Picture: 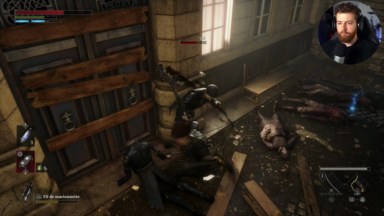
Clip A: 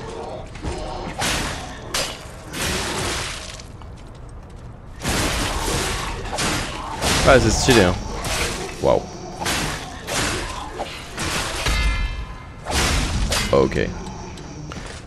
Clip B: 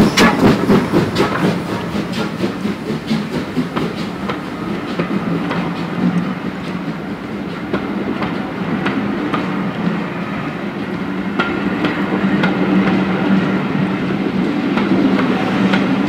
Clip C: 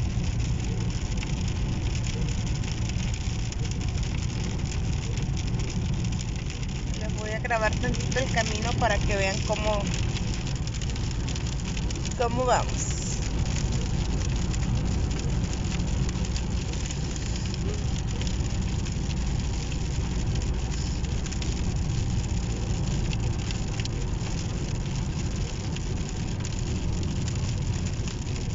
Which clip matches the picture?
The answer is A